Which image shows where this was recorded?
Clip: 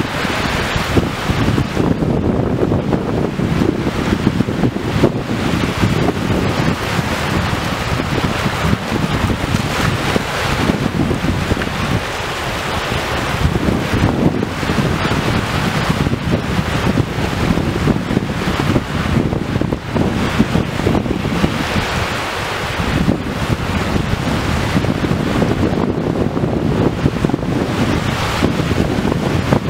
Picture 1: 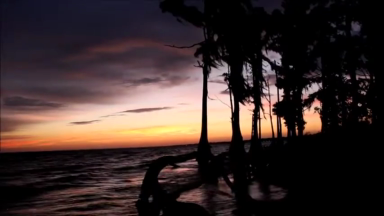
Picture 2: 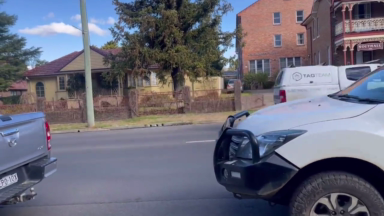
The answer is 1